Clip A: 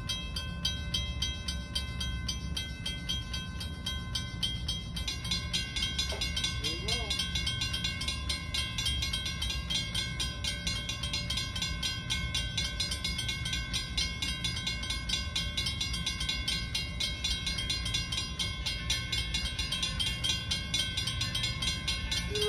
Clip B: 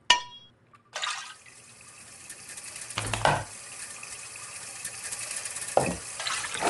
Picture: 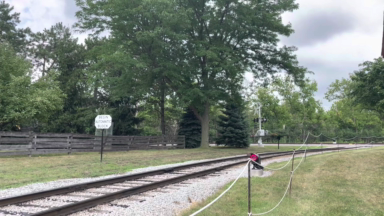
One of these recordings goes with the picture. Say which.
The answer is A